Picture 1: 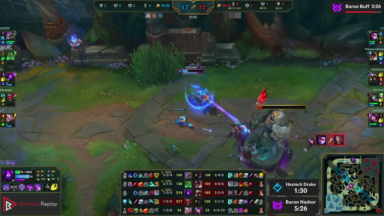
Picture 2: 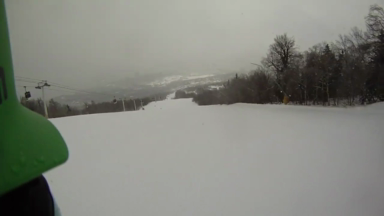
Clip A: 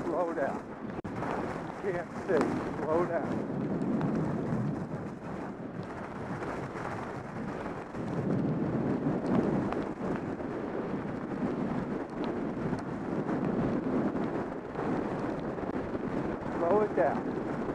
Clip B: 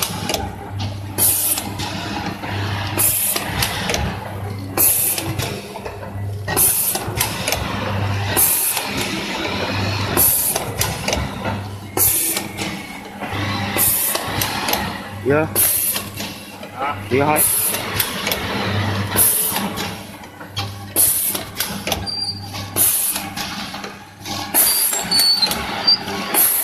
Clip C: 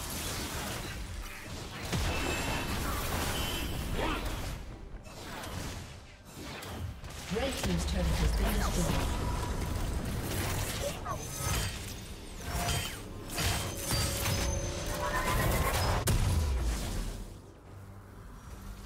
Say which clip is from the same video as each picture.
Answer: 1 C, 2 A